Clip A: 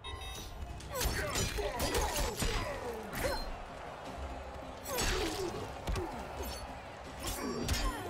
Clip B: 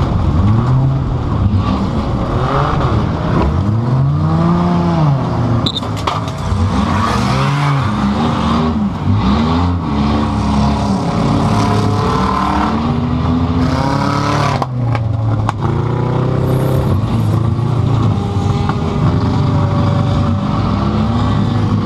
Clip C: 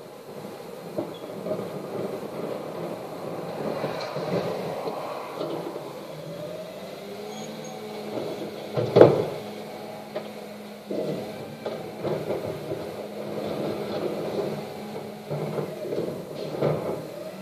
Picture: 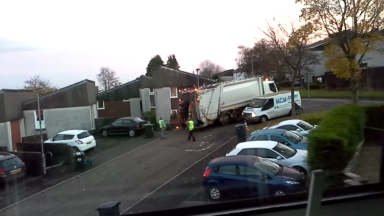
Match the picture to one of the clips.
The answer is C